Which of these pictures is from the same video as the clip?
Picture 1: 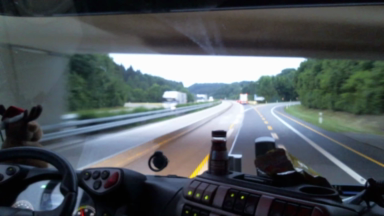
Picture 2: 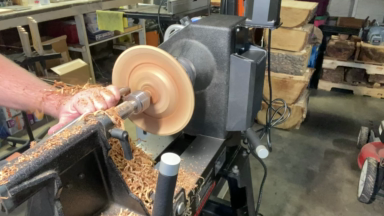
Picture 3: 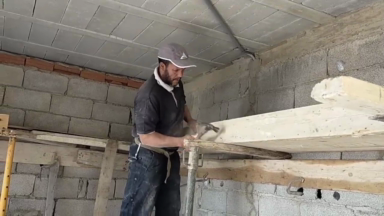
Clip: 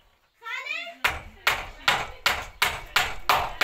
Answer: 3